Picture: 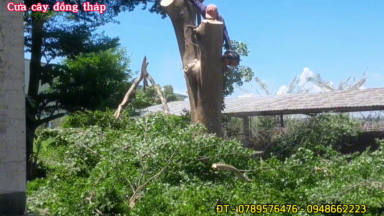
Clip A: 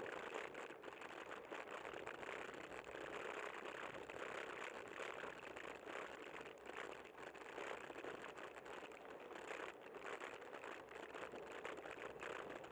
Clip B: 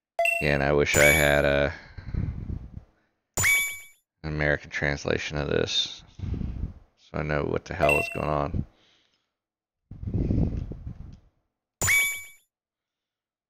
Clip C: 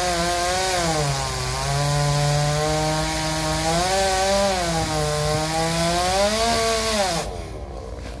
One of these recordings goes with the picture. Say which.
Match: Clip C